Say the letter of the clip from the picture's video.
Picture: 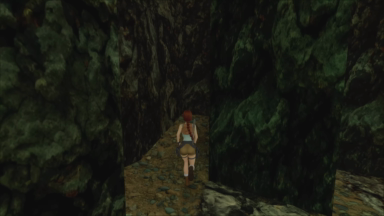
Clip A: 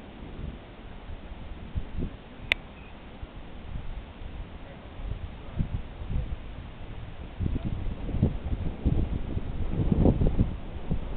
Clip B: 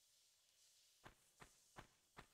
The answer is B